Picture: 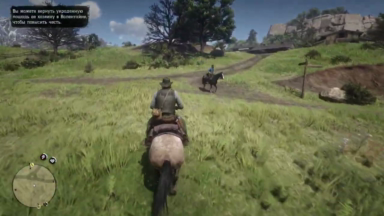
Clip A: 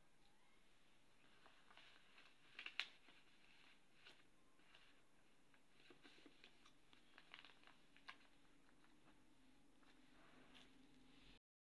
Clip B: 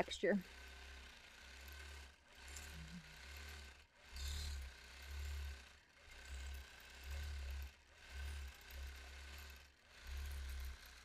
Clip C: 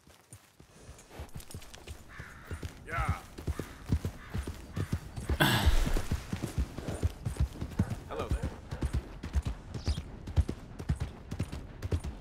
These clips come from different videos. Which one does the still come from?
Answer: C